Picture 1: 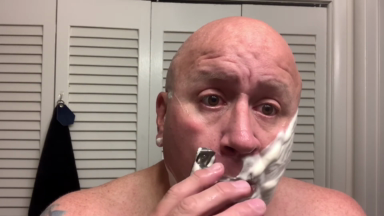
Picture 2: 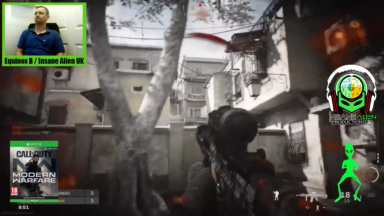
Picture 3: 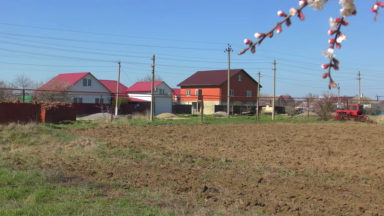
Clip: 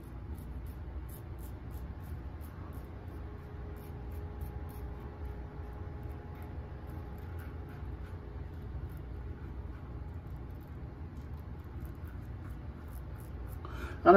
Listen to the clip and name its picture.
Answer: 1